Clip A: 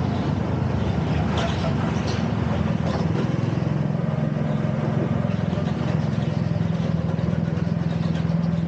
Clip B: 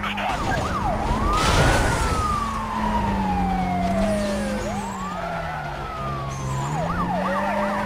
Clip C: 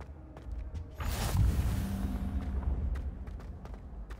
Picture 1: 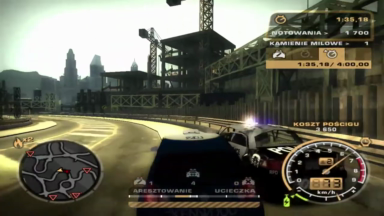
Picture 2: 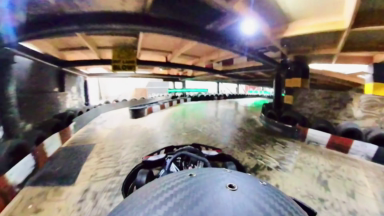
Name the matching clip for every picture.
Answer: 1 B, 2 A